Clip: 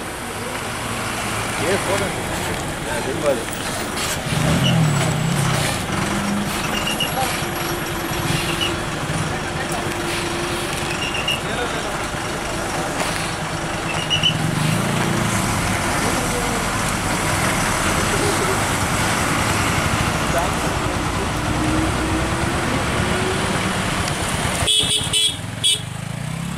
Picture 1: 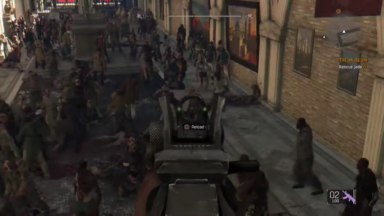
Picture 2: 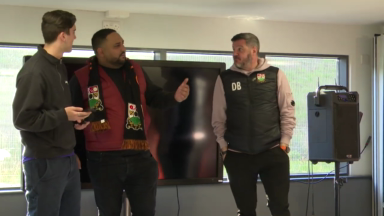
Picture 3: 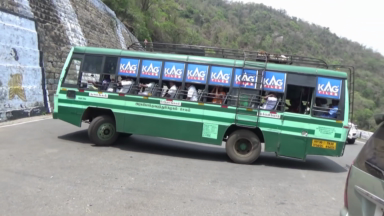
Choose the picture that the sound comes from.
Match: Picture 3